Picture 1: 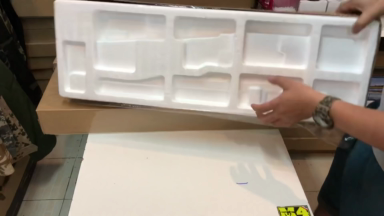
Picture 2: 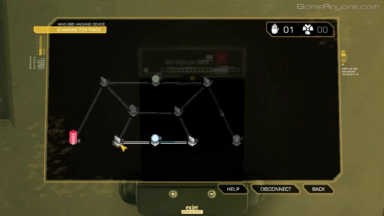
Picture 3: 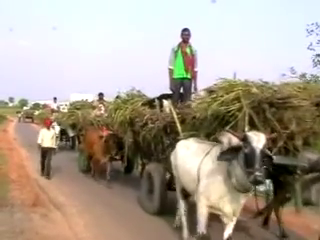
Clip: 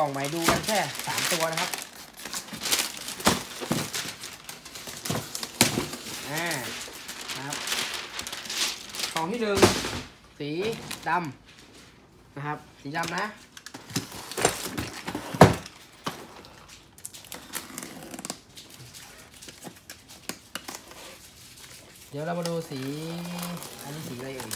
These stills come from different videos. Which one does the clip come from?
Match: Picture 1